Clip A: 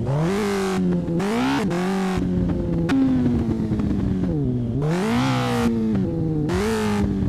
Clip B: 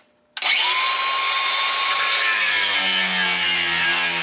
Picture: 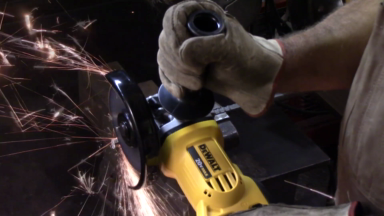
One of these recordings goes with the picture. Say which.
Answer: B